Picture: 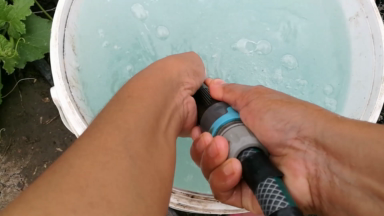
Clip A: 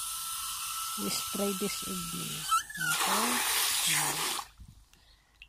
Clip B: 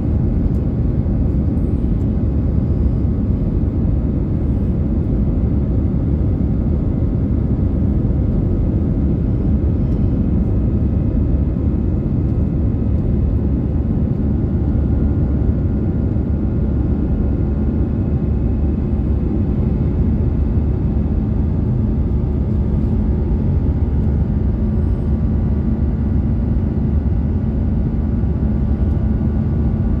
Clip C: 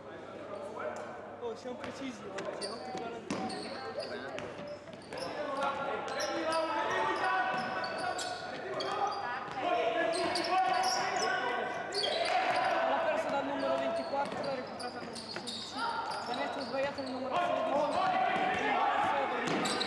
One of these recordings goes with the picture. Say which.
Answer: A